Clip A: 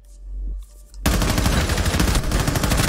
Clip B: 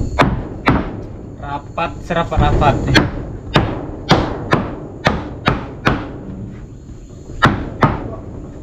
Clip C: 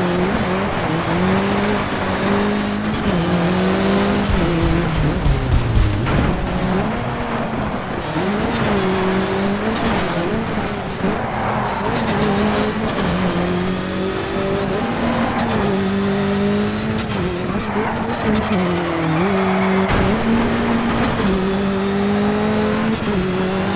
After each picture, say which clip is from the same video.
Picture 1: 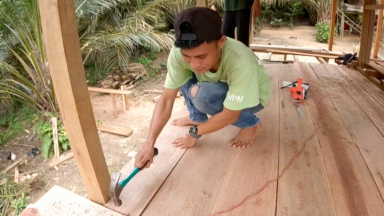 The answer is B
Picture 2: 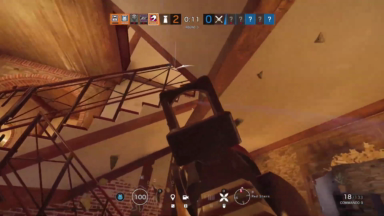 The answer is A